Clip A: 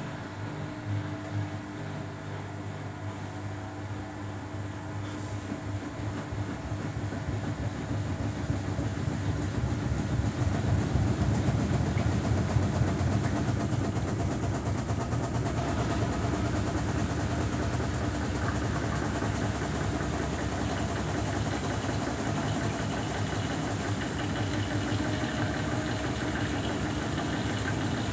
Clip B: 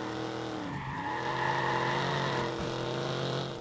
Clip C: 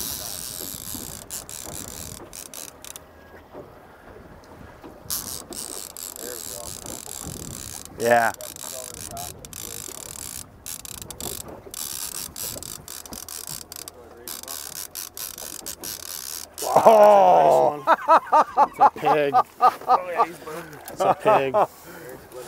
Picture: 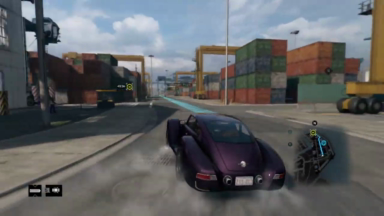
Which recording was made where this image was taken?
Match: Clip B